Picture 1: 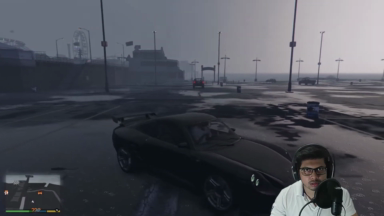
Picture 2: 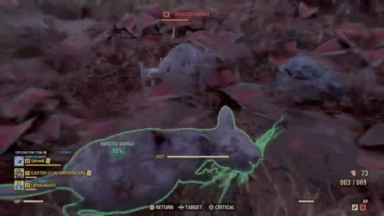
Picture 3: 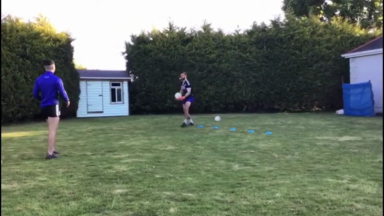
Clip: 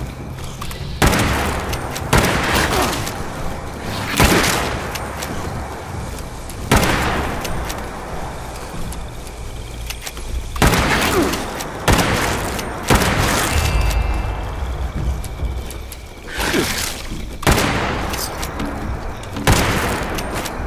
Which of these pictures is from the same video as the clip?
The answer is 2